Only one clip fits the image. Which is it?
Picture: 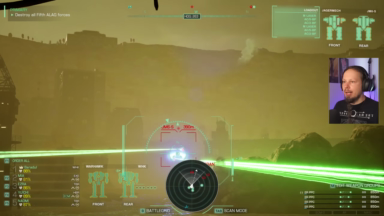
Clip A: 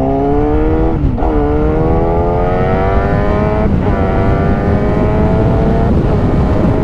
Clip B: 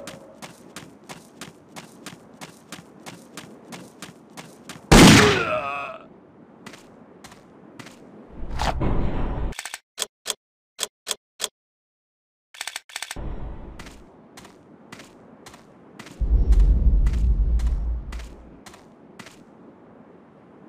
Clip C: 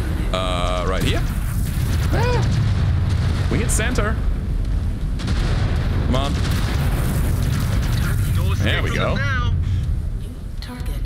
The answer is C